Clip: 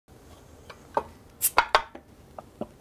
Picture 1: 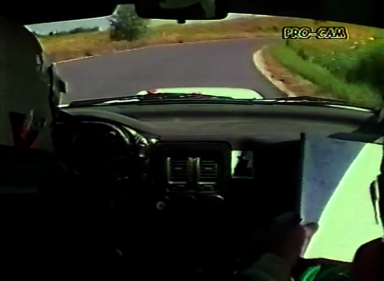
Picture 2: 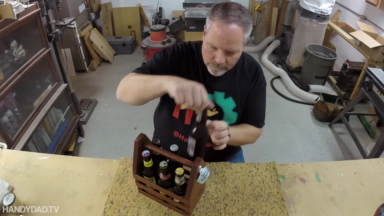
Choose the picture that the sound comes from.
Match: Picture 2